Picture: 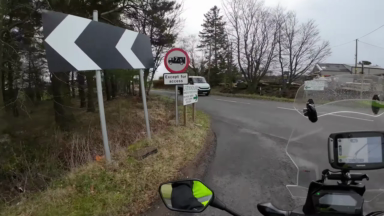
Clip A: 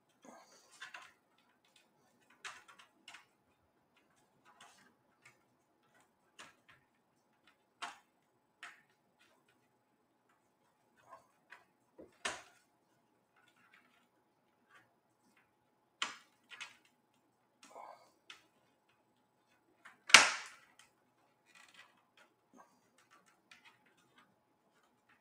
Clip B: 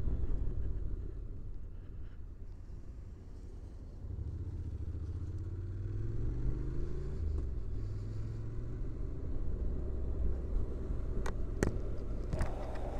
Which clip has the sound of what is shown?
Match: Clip B